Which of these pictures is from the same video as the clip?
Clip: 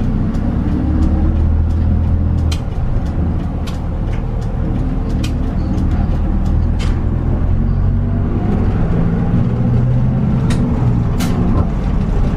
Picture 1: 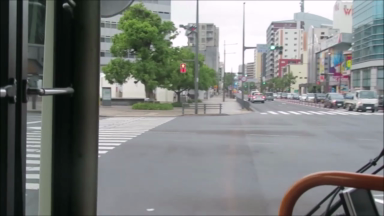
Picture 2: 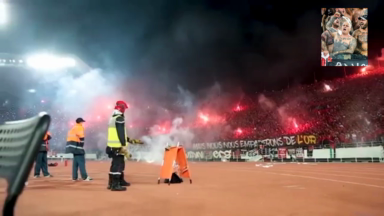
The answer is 1